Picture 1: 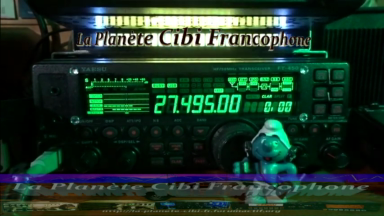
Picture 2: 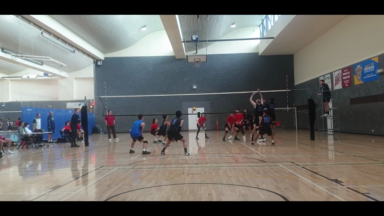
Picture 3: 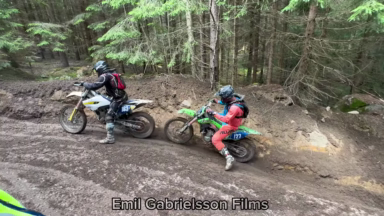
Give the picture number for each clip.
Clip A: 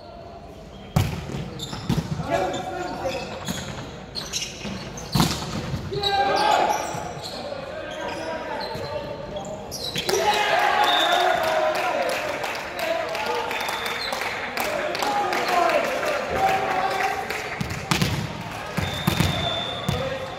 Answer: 2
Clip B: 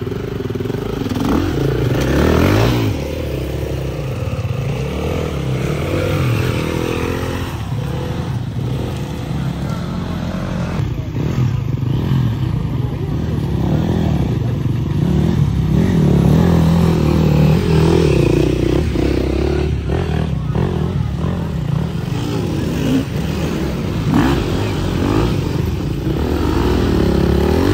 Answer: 3